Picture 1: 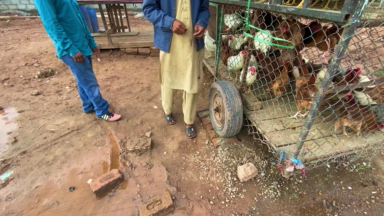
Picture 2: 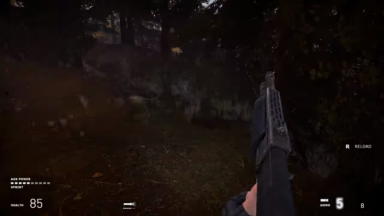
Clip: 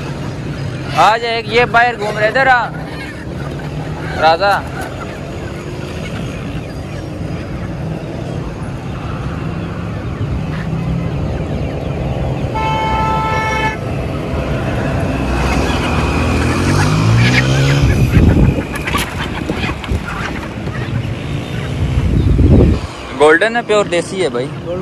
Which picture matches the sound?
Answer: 1